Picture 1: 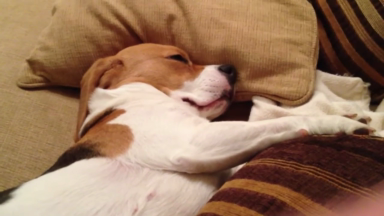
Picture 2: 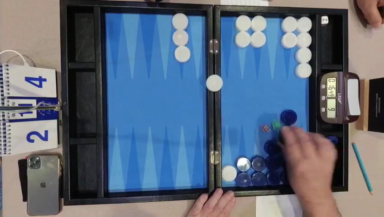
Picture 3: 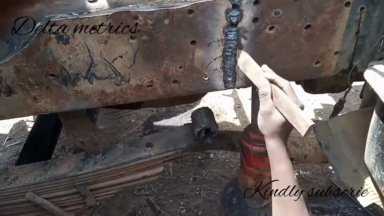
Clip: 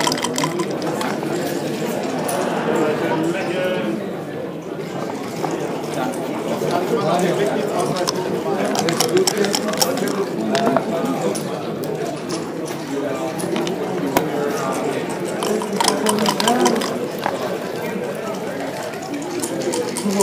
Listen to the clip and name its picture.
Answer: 2